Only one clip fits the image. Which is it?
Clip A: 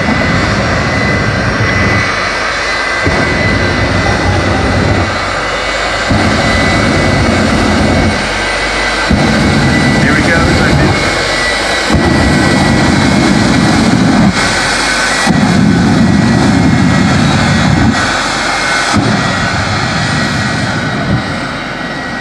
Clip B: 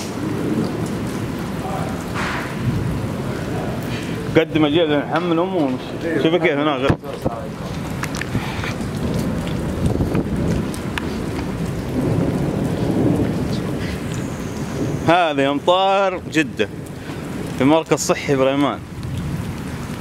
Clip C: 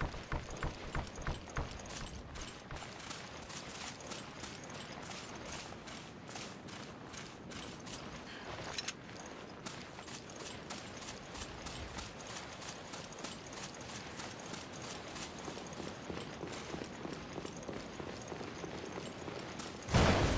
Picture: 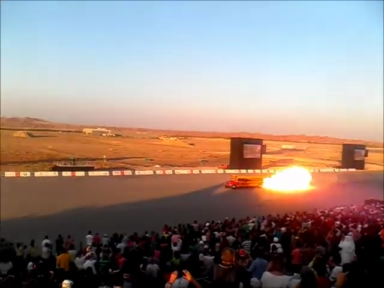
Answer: A